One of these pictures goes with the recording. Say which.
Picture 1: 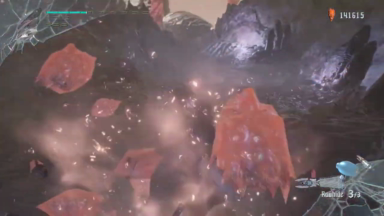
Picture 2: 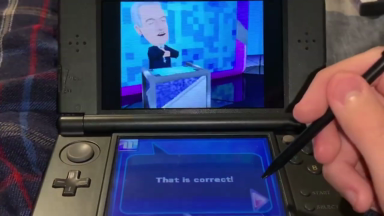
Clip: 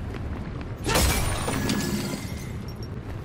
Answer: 1